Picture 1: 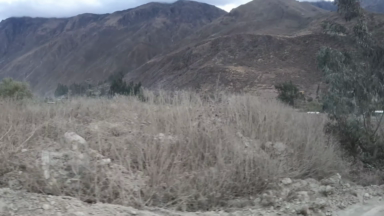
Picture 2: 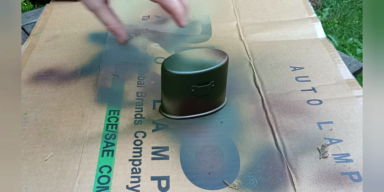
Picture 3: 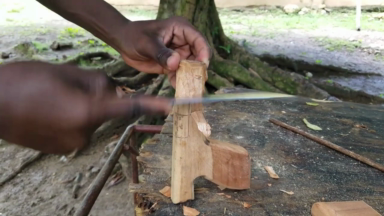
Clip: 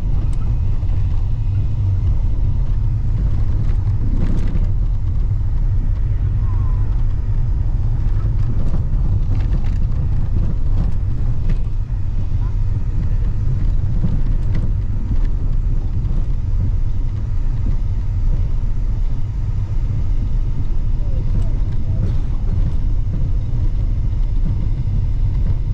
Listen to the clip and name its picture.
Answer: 1